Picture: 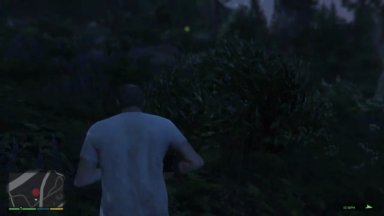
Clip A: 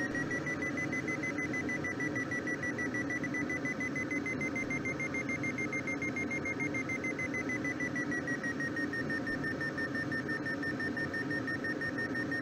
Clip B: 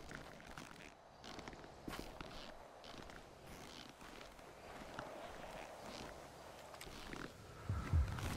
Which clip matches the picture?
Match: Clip B